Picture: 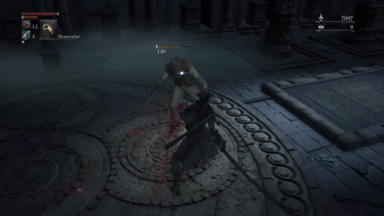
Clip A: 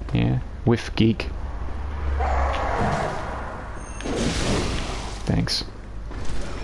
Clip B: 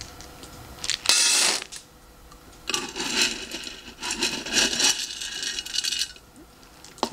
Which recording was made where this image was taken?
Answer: A